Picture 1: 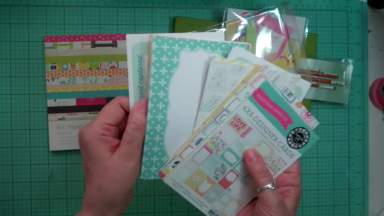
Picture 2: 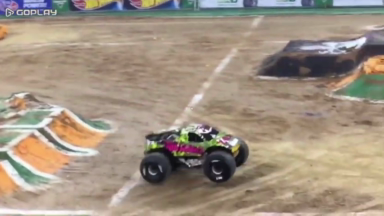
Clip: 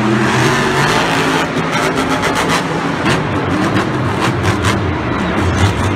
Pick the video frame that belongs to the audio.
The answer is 2